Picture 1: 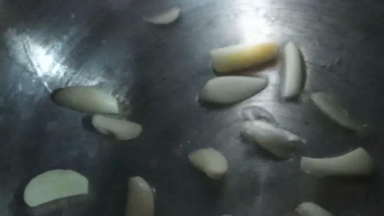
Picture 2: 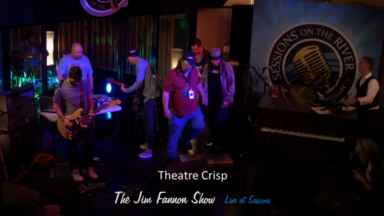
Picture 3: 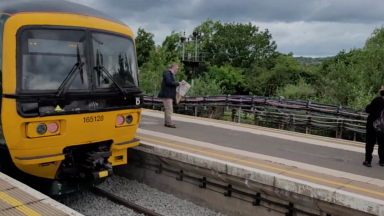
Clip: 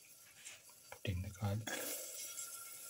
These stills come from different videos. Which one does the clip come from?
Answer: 1